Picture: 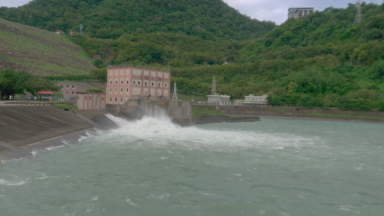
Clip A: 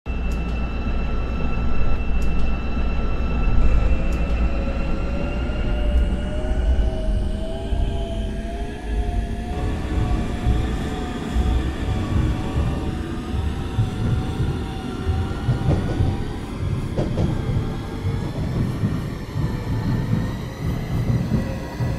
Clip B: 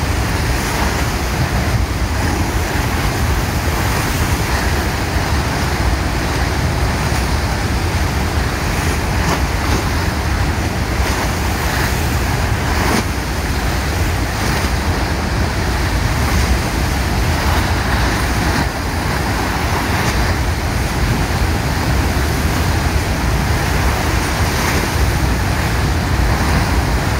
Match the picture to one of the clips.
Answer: B